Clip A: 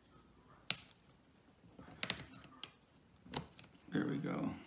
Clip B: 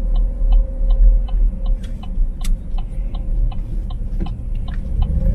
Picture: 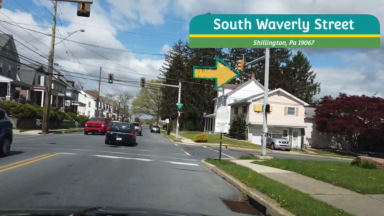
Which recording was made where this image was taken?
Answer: B